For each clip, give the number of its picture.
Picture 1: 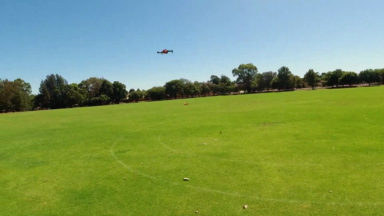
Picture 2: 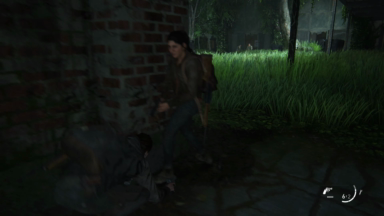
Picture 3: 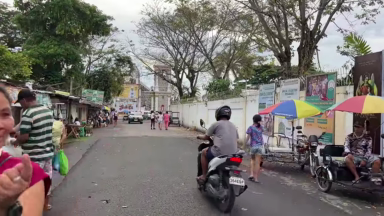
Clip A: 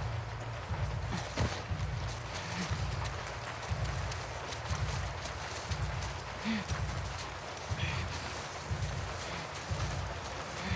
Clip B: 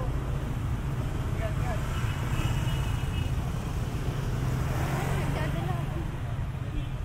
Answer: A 2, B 3